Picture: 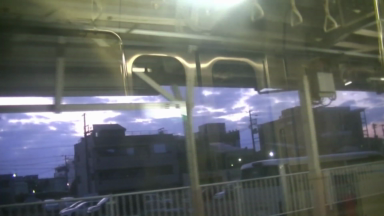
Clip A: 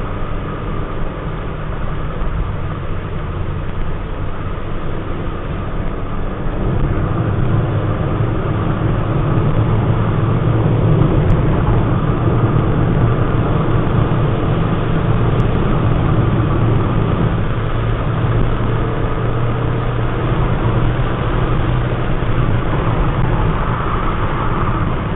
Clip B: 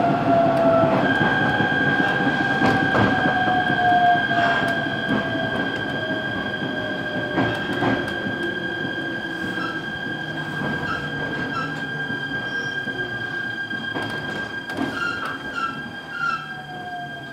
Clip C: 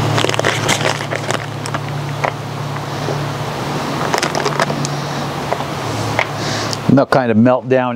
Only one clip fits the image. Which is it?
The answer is B